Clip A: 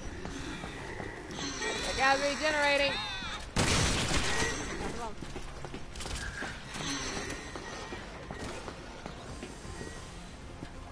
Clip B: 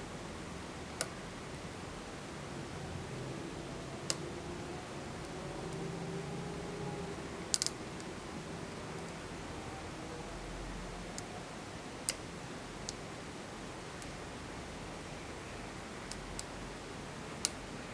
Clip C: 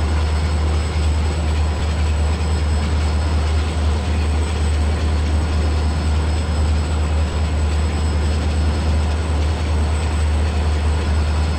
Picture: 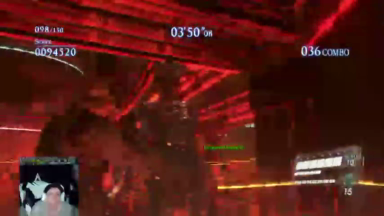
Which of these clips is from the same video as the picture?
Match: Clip A